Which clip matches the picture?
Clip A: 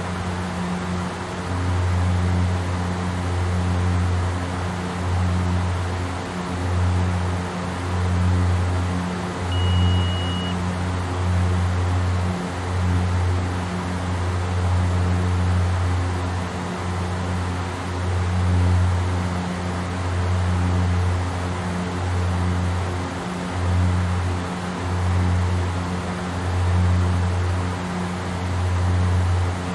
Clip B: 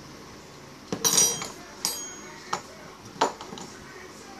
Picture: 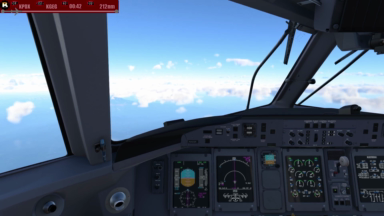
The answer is A